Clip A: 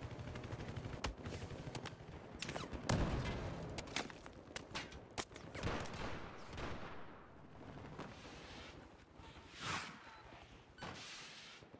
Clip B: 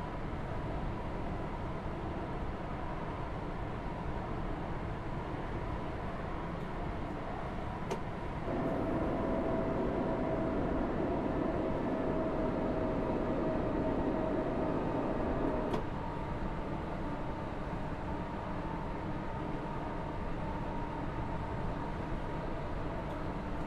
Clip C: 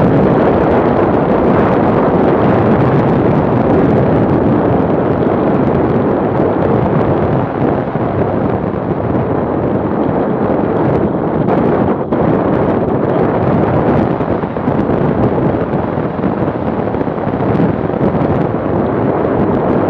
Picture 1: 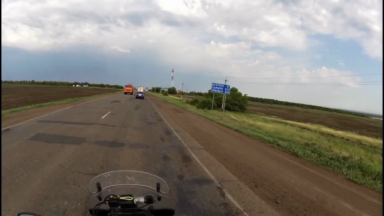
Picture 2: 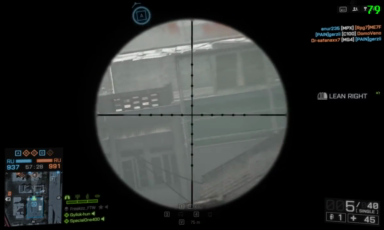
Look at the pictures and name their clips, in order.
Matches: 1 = C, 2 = A